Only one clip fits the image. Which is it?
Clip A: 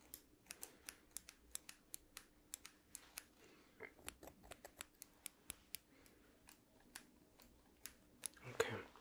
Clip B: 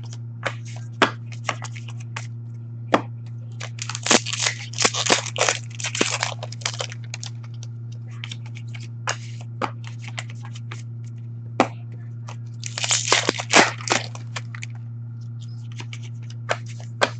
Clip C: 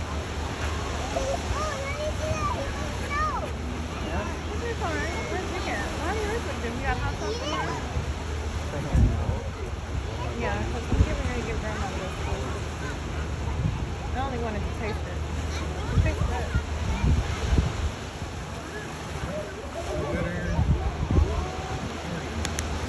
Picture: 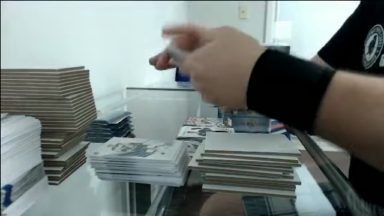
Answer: B